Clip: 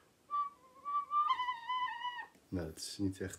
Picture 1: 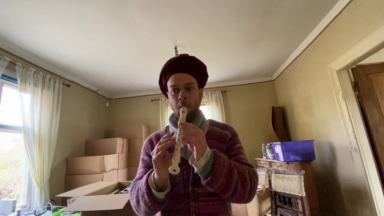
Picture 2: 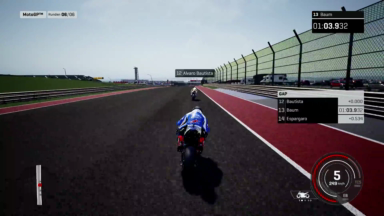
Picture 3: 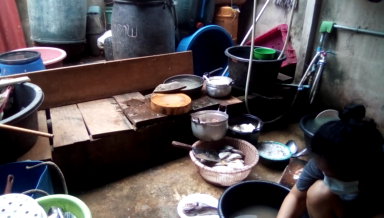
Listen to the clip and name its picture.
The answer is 1